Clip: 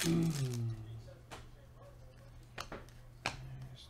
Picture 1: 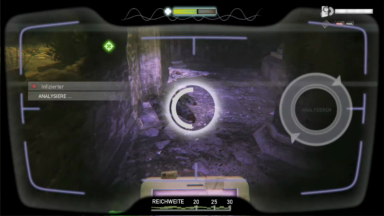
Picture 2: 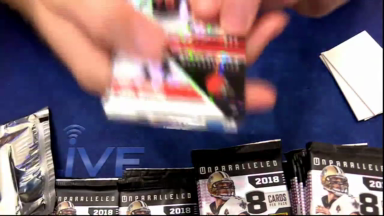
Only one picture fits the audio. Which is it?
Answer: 2